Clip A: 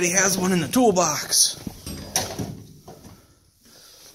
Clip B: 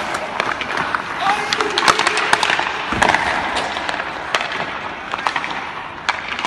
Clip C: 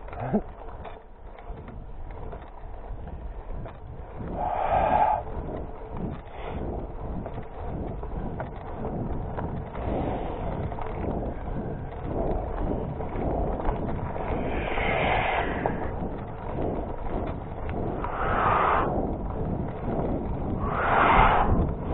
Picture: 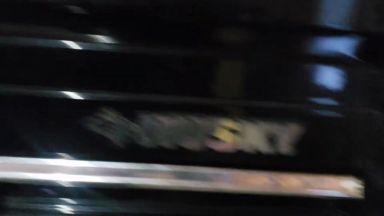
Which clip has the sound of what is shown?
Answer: A